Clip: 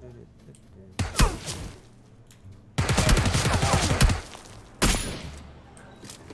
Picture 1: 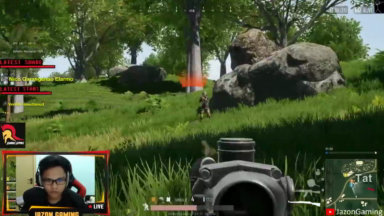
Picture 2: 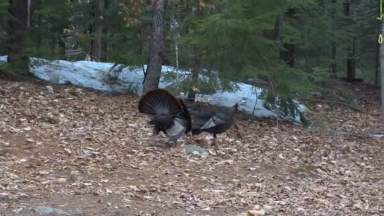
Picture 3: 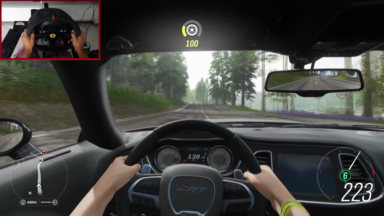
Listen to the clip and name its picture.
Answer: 1